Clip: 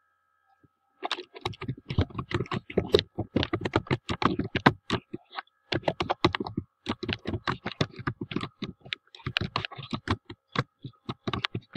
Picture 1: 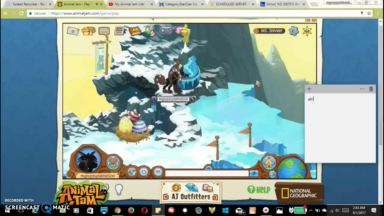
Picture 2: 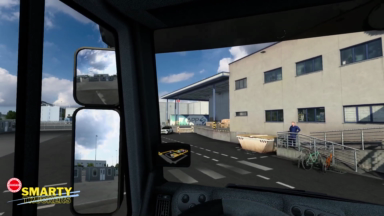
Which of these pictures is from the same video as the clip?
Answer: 1